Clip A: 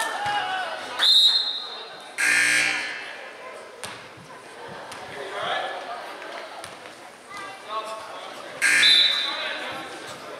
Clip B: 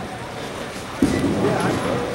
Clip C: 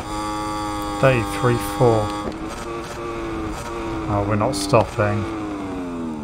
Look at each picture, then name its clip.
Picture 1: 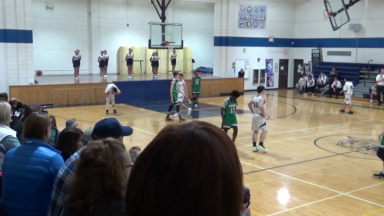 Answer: A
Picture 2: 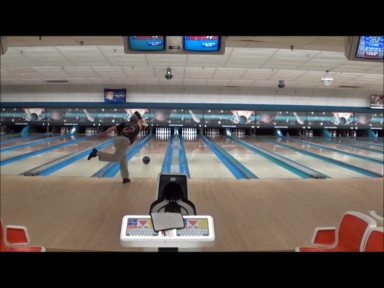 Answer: B